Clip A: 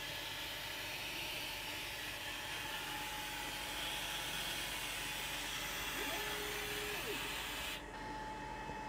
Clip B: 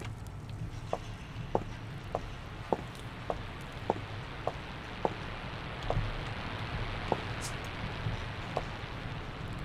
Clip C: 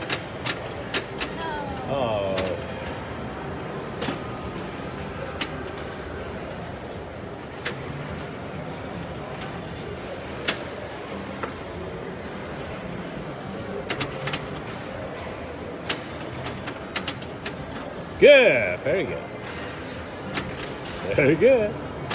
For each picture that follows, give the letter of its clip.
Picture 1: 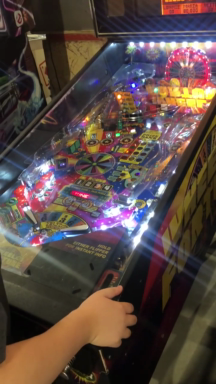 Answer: C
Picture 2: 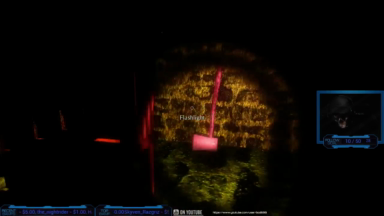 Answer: B